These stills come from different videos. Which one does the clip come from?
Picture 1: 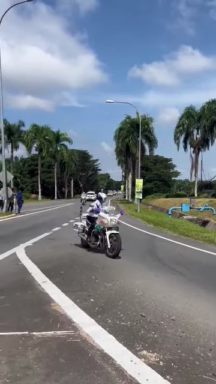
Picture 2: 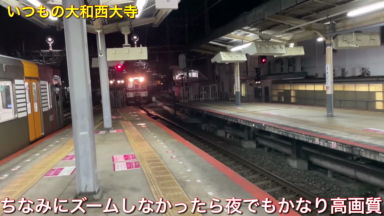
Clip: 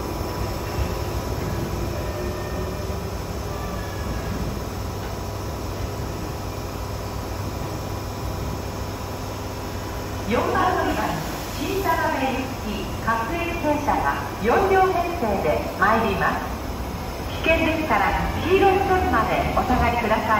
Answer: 2